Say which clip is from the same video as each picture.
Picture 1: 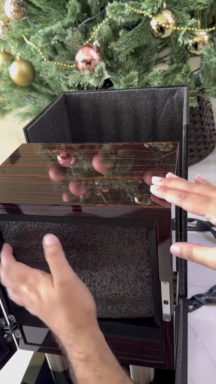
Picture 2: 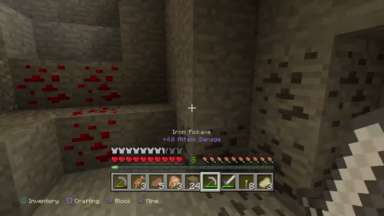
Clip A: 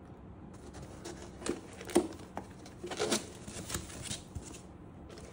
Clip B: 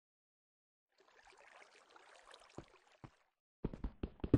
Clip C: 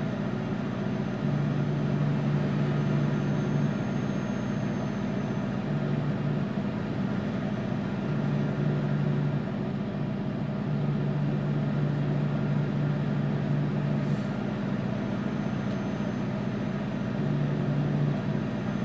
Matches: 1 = A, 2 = B